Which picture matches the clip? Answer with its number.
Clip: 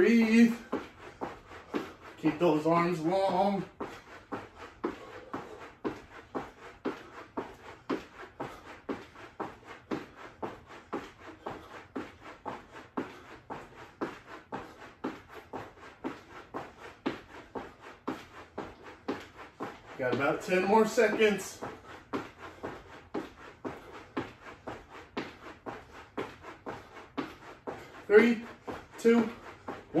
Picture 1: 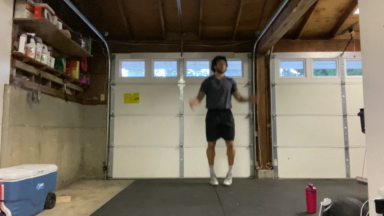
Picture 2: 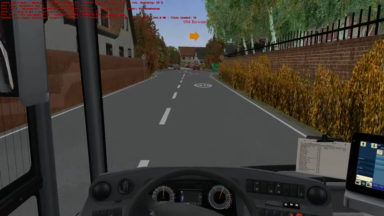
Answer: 1